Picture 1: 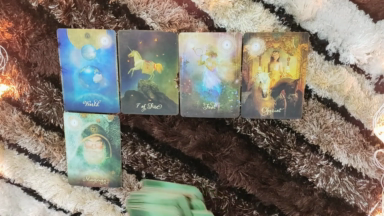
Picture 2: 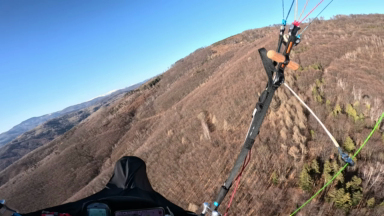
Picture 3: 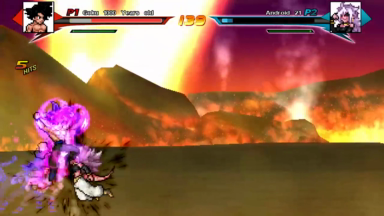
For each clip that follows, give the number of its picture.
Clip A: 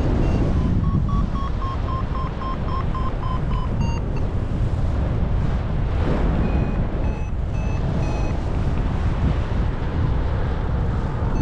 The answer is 2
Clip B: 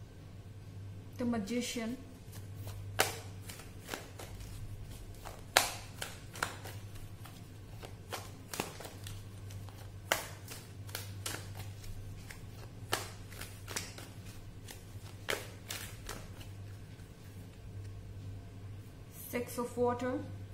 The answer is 1